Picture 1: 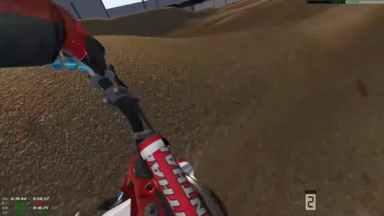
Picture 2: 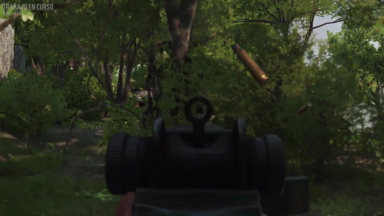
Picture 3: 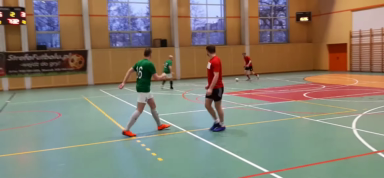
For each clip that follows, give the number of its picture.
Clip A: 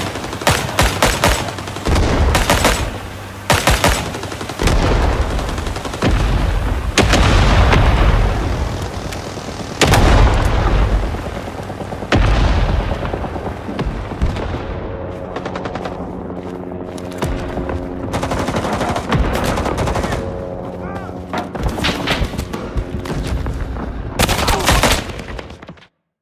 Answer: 2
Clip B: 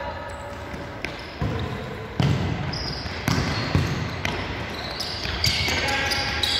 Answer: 3